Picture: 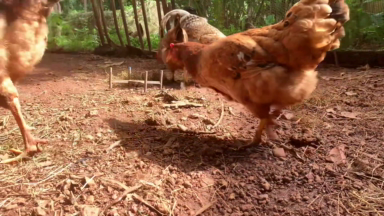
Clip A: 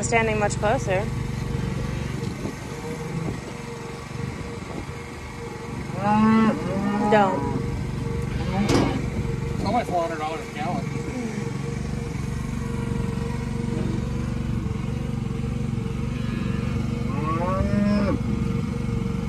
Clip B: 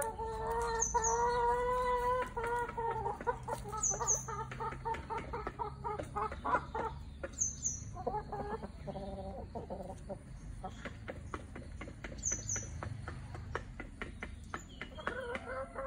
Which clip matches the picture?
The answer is B